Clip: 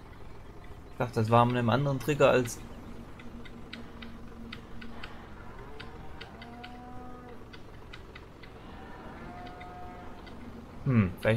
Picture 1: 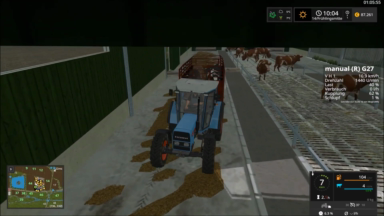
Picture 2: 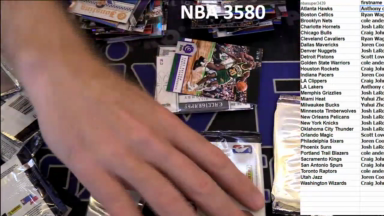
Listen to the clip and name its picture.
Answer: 1